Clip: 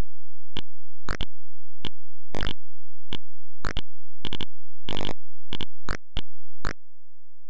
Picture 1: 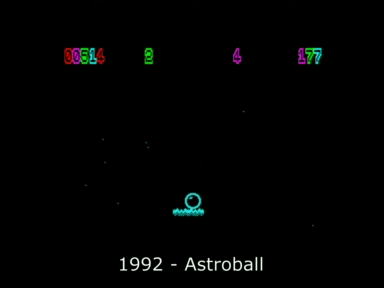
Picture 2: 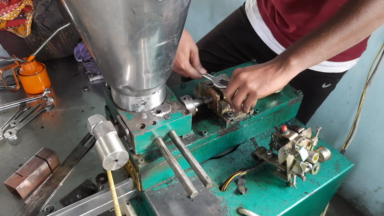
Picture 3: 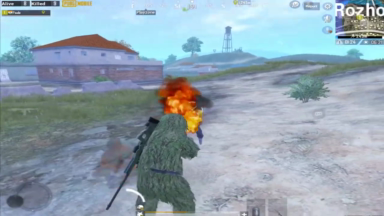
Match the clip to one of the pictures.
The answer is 1